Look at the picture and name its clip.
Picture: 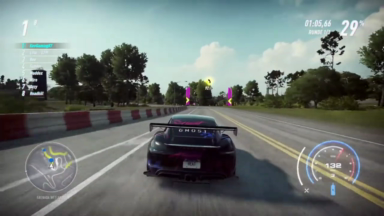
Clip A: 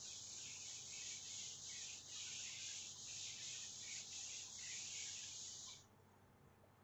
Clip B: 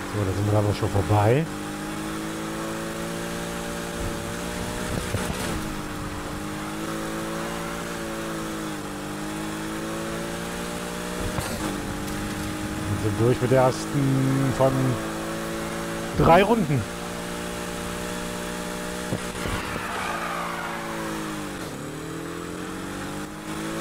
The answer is B